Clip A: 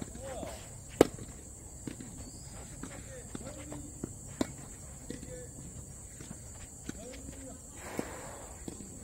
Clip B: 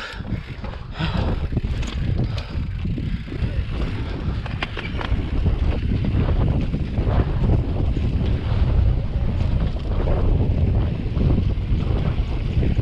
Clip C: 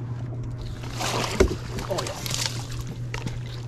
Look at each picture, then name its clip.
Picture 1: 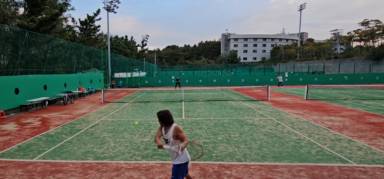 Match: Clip A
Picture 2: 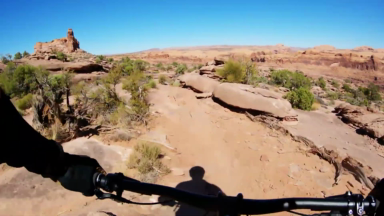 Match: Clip B